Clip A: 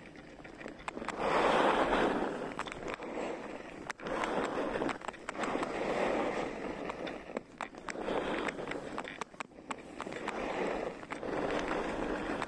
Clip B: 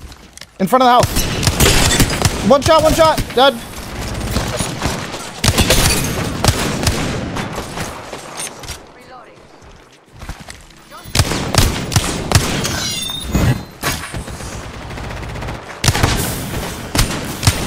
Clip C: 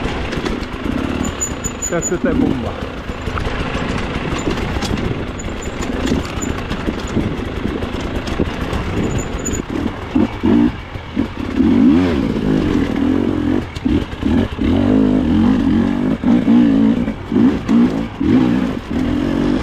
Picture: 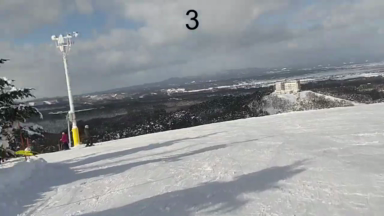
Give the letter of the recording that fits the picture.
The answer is A